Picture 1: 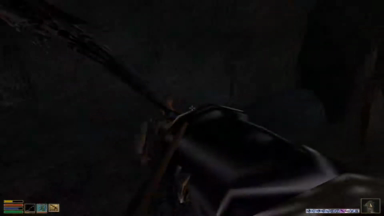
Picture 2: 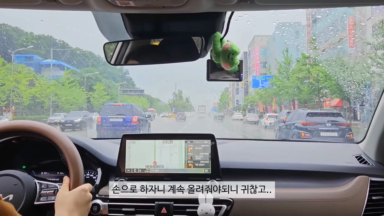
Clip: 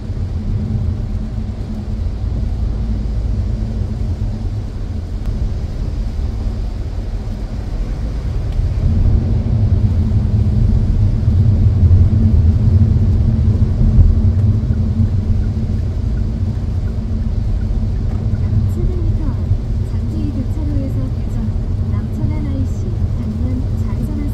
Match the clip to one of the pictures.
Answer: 2